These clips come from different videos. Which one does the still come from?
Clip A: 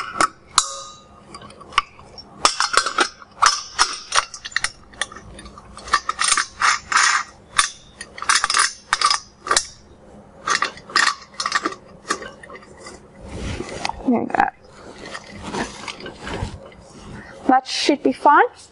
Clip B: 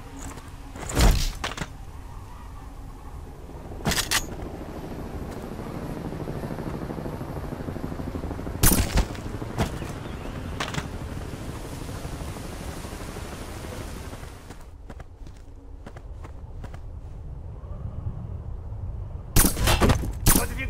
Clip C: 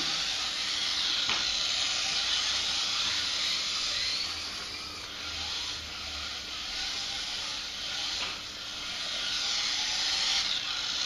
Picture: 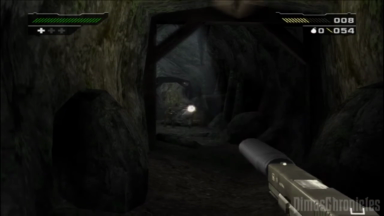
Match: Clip B